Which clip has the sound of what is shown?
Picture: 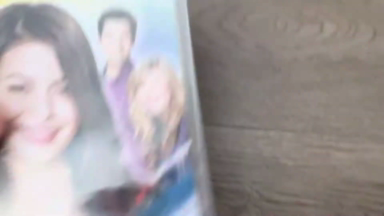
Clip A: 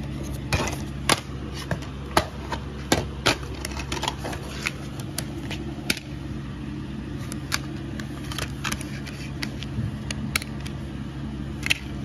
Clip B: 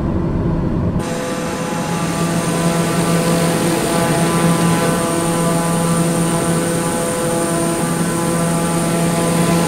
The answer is A